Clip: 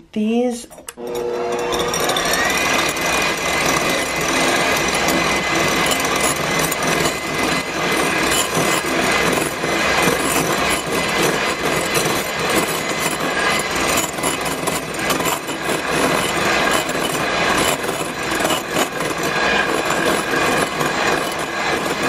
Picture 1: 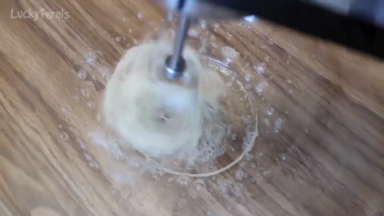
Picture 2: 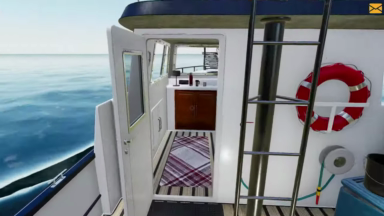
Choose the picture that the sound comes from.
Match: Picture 1